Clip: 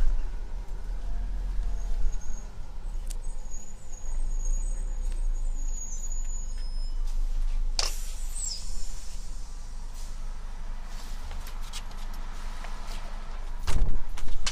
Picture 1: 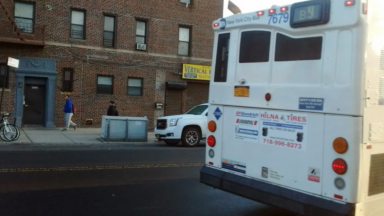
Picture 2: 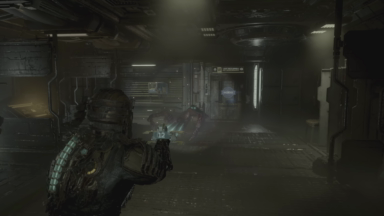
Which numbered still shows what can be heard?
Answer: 1